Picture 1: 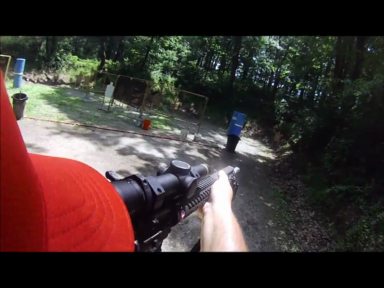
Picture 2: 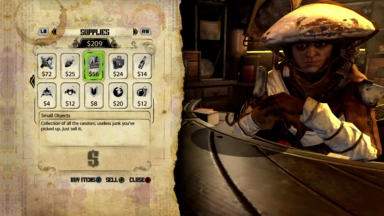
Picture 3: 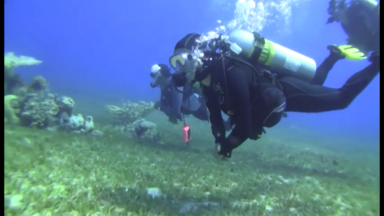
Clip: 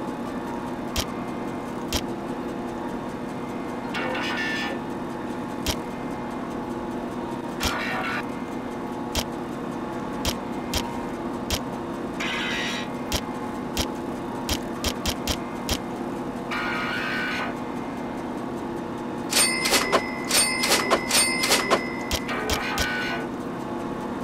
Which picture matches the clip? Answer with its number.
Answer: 2